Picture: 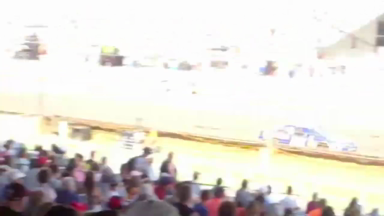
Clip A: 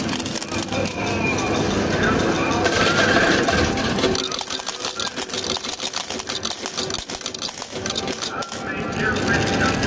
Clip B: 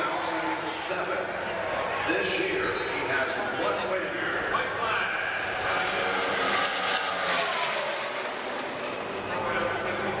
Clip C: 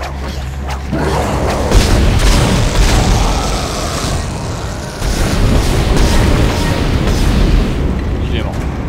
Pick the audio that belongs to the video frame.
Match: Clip B